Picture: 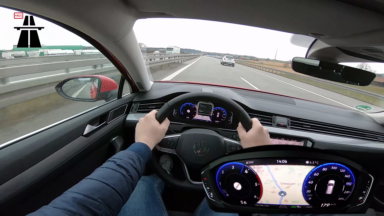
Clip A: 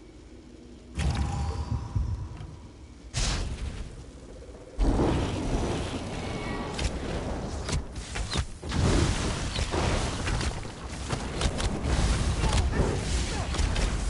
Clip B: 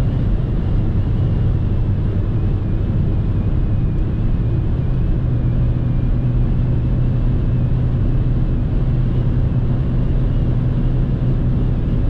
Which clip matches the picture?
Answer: B